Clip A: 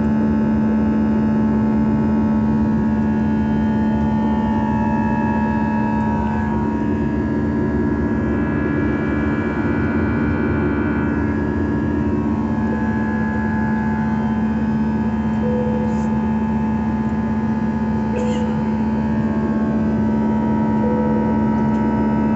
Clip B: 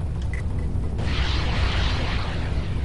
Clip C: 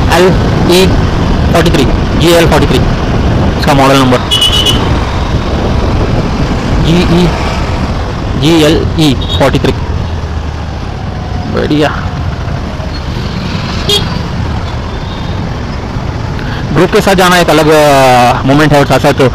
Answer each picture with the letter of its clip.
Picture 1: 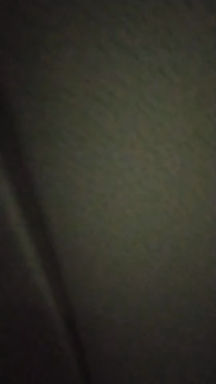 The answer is A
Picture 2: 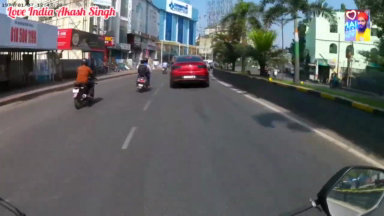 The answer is C